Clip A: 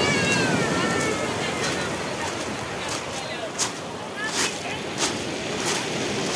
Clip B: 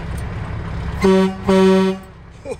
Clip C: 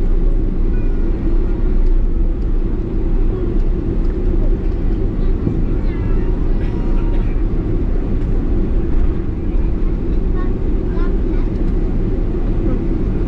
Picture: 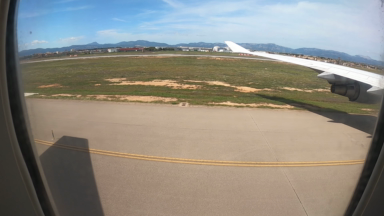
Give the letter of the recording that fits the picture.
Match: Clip C